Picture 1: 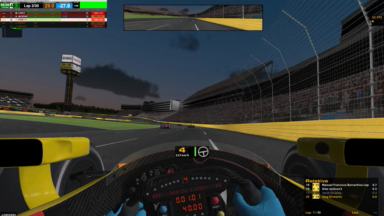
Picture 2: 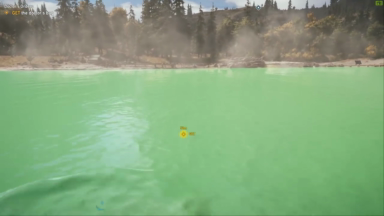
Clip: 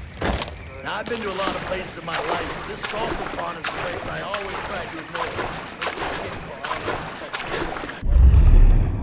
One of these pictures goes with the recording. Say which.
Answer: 2